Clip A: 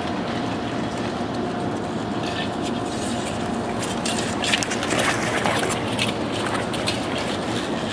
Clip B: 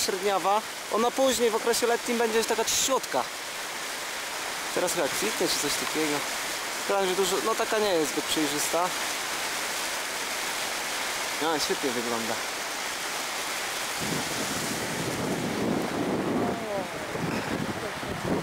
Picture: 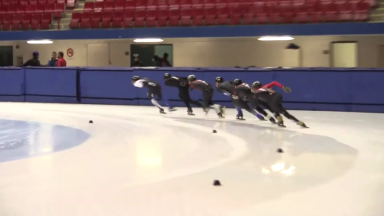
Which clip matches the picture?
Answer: A